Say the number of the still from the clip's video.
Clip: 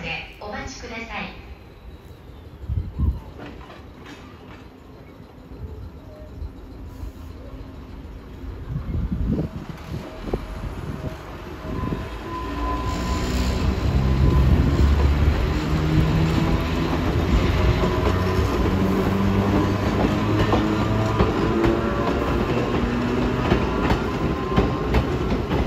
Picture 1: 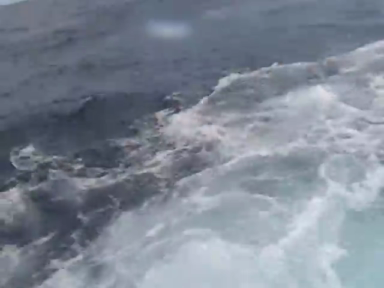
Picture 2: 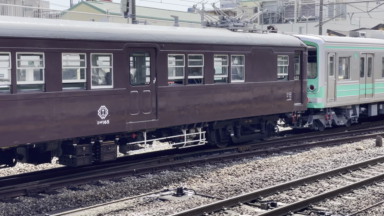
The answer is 2